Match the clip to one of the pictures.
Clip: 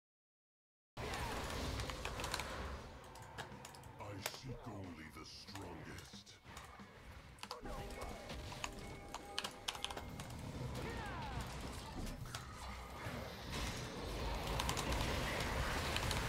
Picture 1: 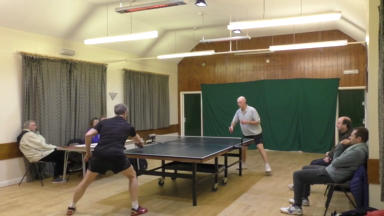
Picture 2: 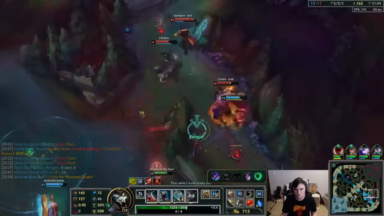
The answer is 2